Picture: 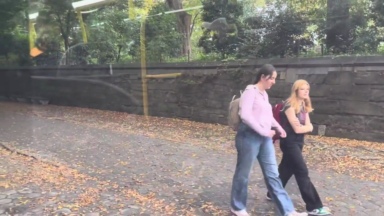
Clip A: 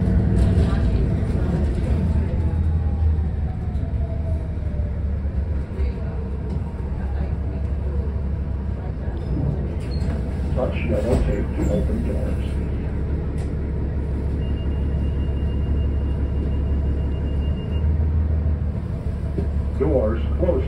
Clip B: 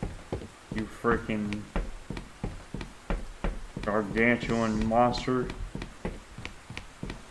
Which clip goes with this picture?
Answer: A